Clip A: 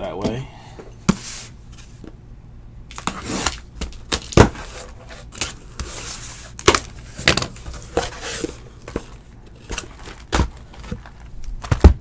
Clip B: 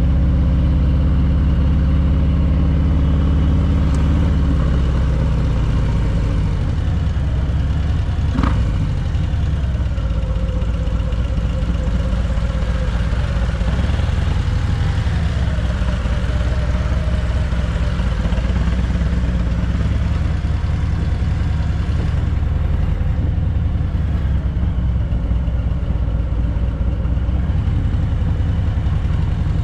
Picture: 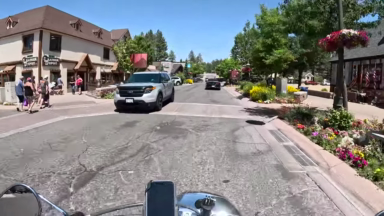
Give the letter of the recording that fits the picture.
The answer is B